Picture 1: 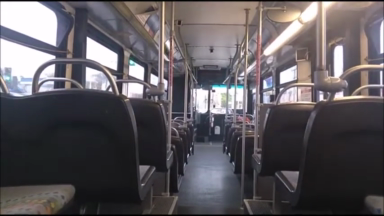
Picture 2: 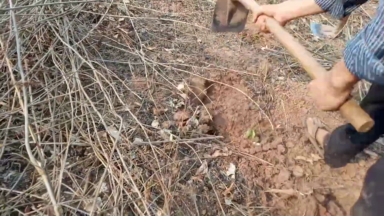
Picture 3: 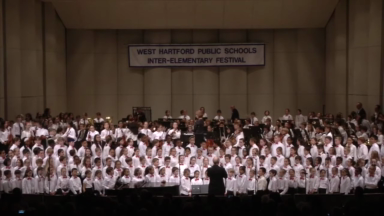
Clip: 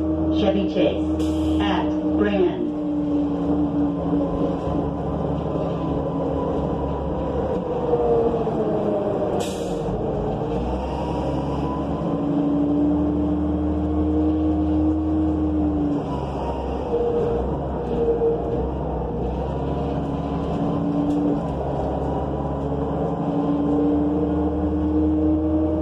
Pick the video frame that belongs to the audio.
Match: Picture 1